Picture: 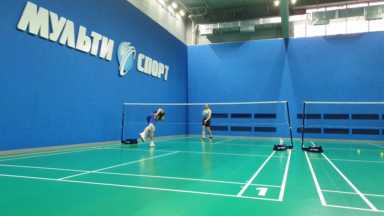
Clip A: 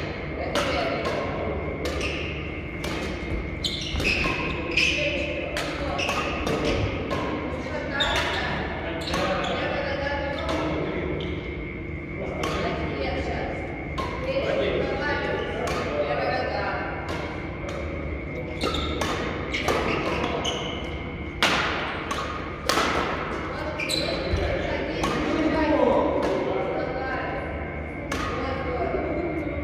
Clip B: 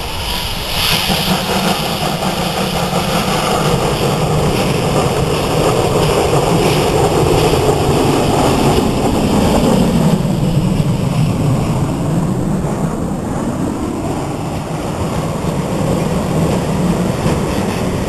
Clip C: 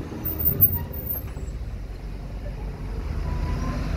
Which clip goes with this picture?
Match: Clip A